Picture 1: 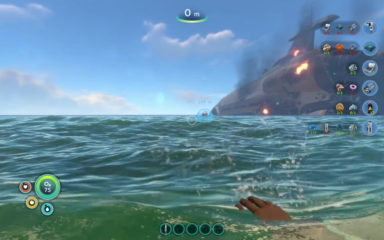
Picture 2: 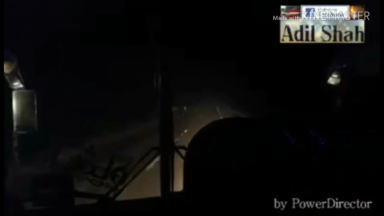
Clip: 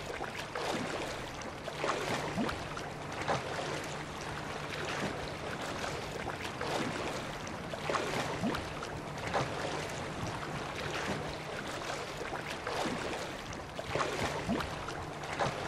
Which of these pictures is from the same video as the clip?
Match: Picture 1